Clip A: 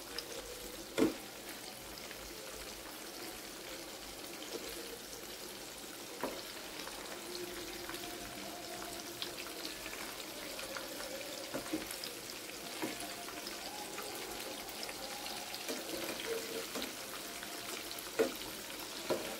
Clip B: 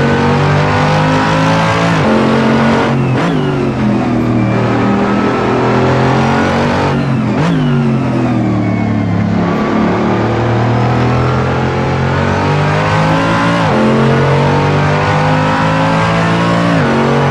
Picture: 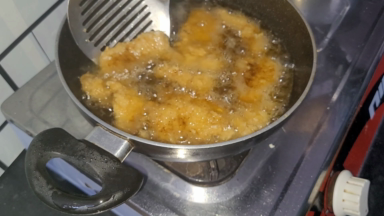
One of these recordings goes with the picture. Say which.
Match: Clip A